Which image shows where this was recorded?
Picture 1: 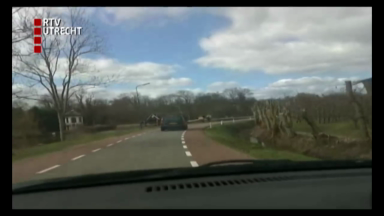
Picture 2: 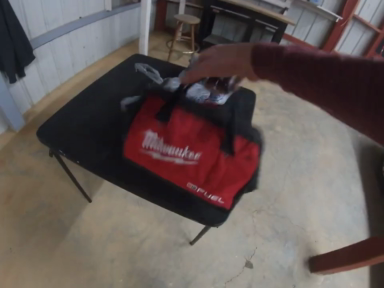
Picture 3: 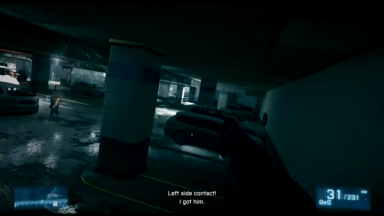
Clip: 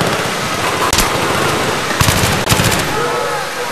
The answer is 3